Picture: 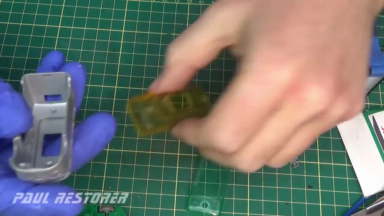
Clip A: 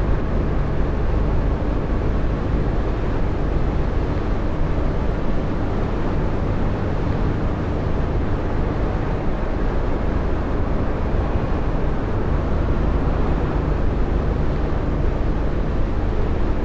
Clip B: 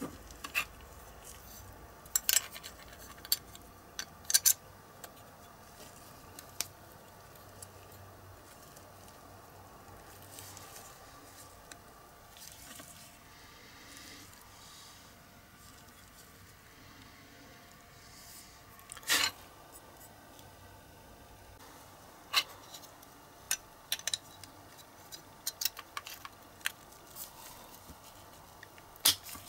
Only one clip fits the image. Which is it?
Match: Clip B